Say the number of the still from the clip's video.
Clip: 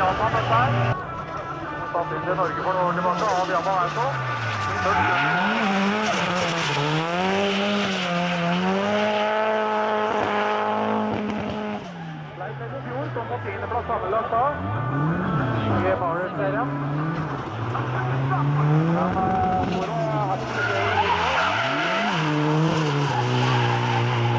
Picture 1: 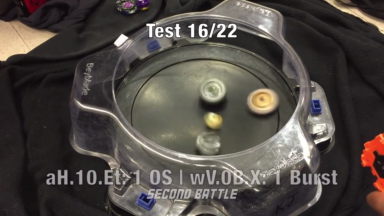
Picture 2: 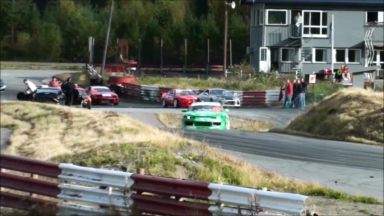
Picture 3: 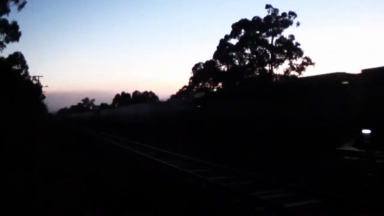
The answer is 2